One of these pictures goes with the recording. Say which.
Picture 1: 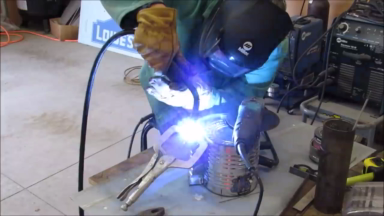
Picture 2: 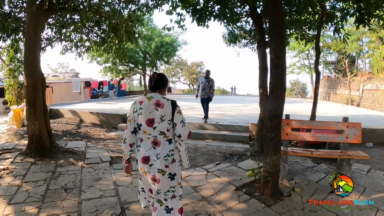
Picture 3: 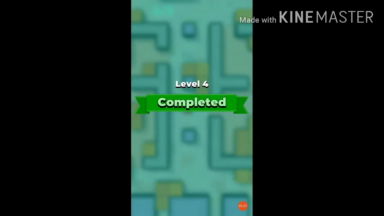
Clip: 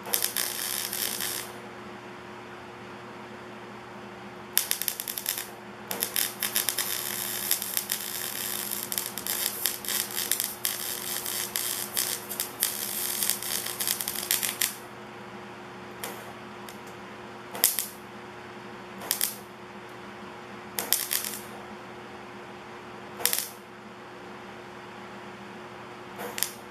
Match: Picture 1